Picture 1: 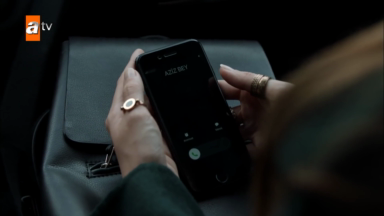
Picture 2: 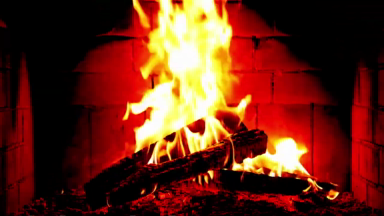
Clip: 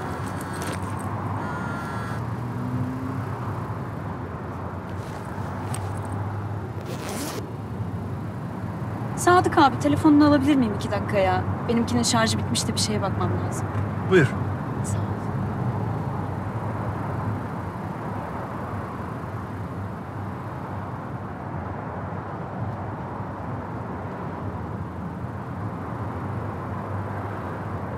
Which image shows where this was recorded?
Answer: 1